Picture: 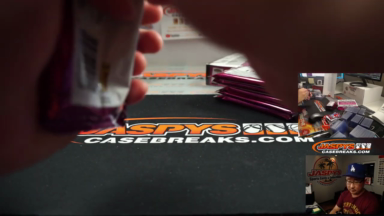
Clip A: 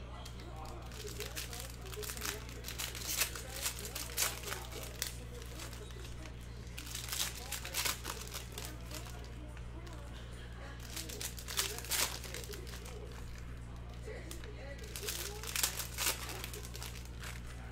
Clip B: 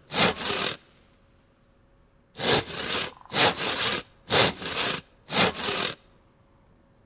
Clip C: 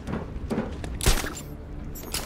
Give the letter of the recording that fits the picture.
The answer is A